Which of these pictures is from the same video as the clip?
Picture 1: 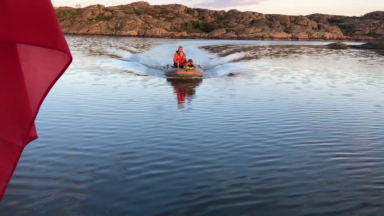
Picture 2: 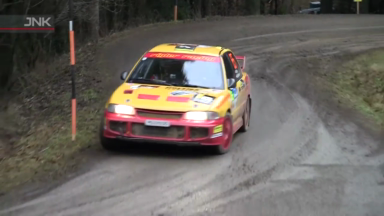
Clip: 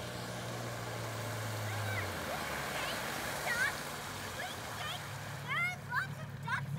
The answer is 1